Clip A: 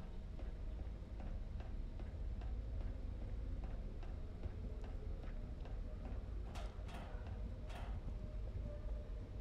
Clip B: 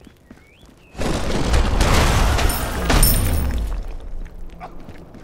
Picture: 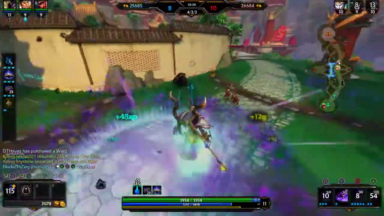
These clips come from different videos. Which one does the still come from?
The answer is B